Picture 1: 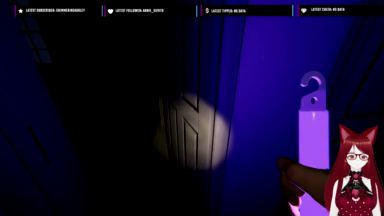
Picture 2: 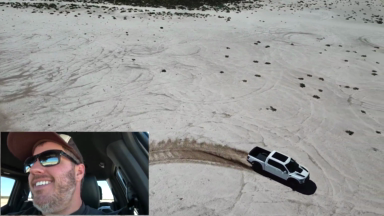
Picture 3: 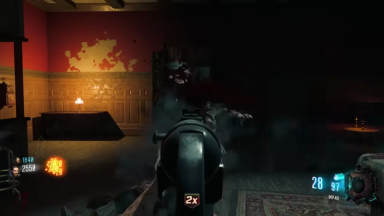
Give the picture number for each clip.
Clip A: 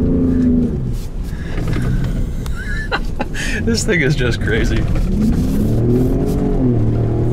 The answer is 2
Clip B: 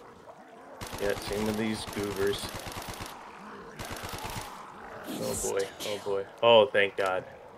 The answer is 3